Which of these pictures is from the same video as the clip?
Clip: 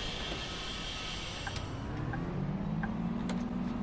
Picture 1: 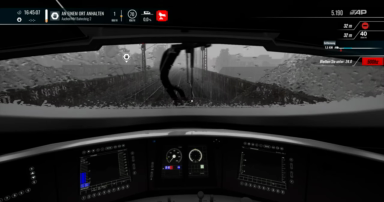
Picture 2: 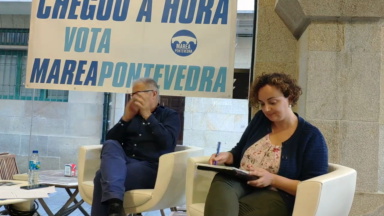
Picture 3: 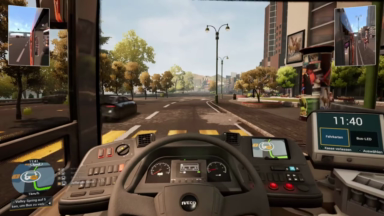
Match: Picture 3